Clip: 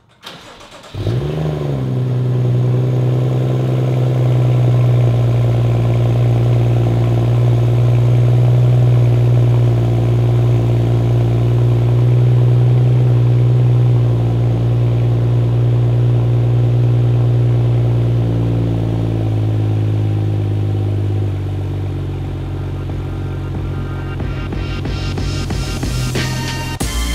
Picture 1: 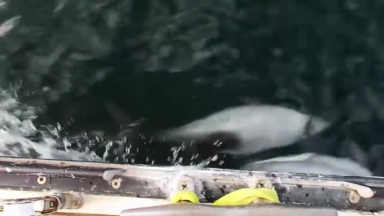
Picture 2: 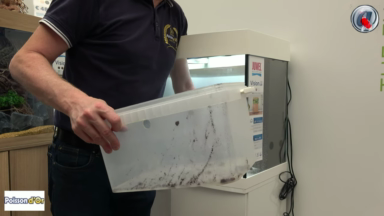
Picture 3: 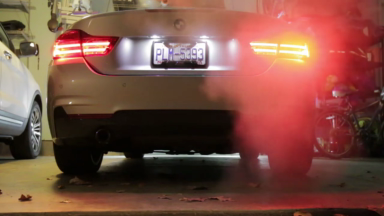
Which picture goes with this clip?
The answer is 3